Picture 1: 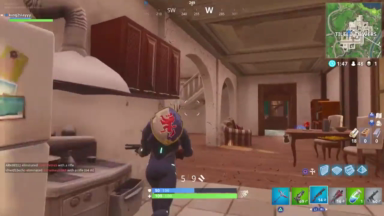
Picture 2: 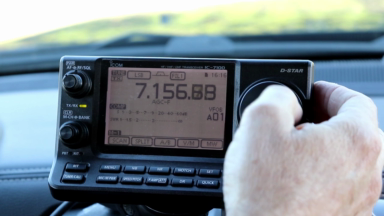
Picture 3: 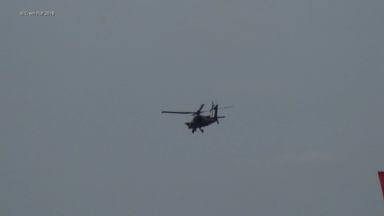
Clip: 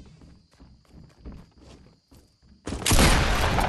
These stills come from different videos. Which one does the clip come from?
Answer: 1